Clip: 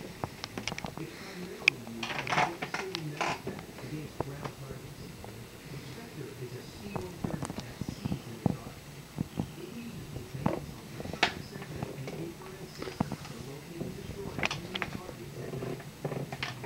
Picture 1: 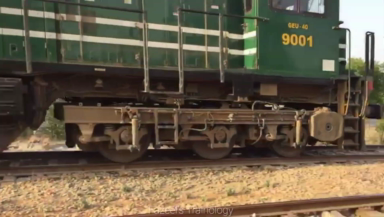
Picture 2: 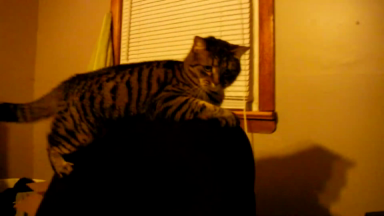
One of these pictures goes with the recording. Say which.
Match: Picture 2